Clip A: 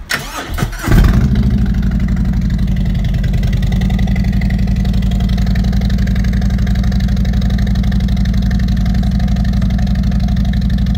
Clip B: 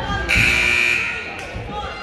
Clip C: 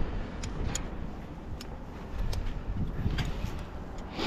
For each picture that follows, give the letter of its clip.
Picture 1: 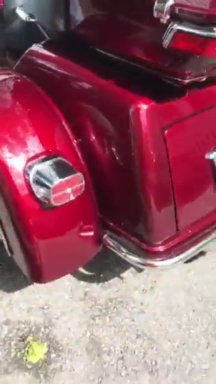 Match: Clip A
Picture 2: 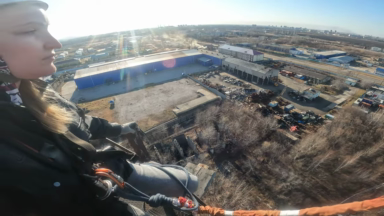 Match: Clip C